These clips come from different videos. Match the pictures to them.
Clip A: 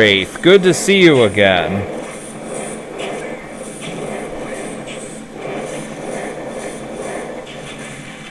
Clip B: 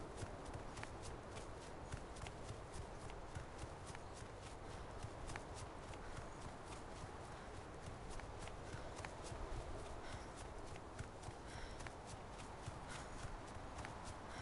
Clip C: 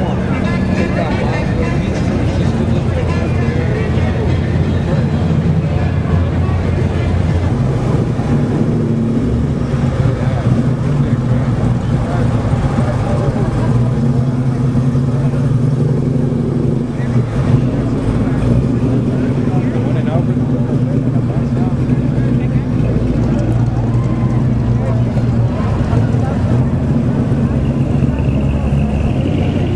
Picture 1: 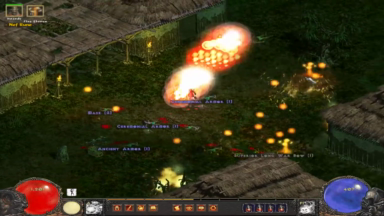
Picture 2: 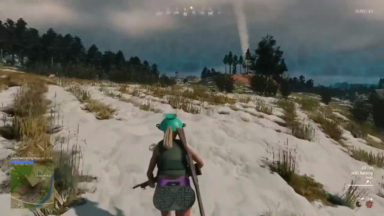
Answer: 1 A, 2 B